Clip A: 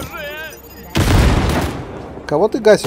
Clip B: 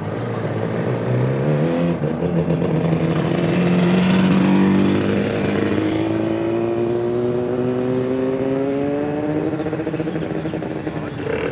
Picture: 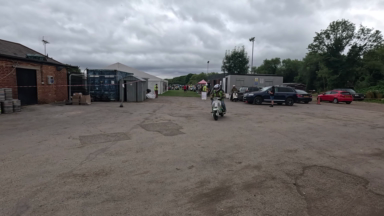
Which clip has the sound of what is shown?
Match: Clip B